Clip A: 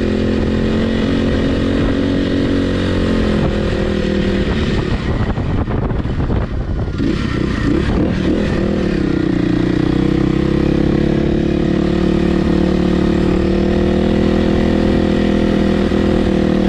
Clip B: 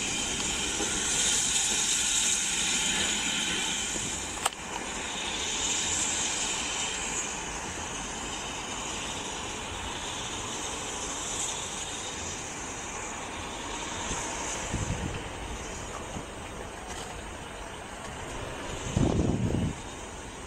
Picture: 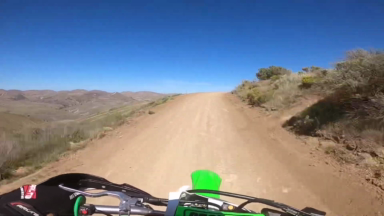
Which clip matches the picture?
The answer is A